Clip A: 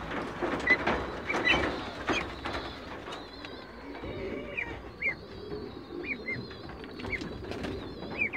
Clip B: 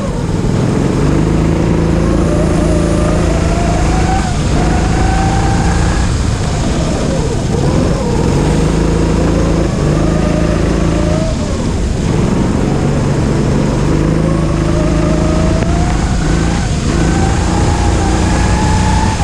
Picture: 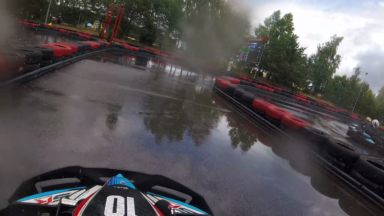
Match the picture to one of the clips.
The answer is B